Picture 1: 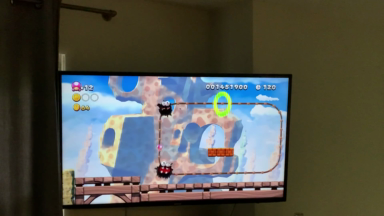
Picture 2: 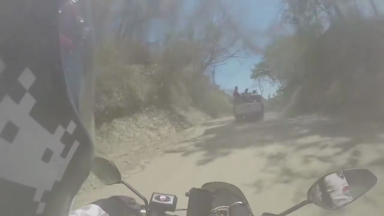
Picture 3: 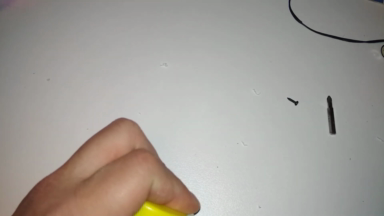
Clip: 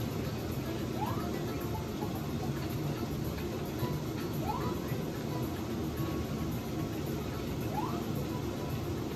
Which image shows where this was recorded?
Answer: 1